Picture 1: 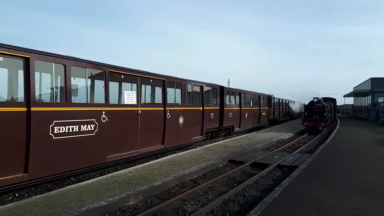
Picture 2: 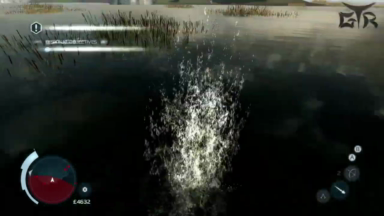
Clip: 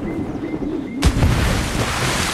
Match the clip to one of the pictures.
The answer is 2